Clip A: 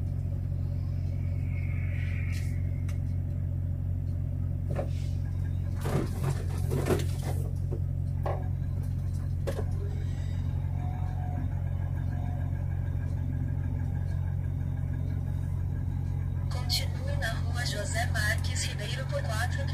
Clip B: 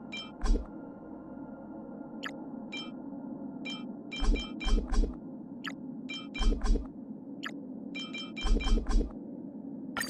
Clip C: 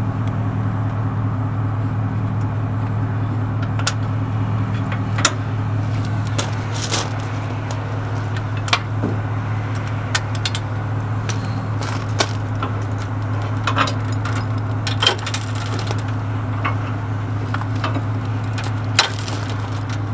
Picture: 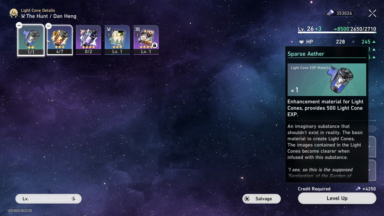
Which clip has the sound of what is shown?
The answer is B